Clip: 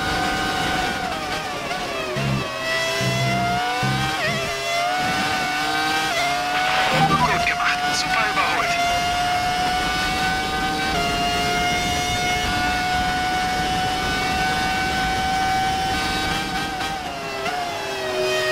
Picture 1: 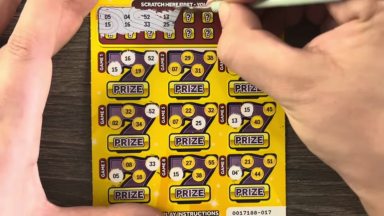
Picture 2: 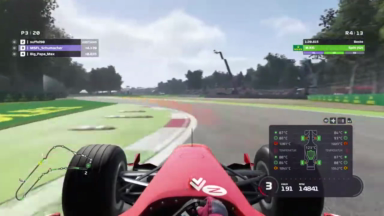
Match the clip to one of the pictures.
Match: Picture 2